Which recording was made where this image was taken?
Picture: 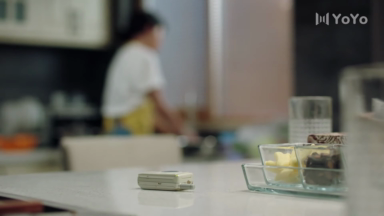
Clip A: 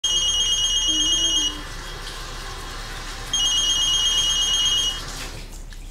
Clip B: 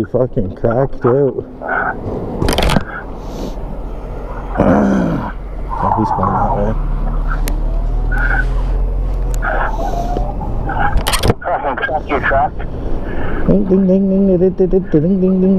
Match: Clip A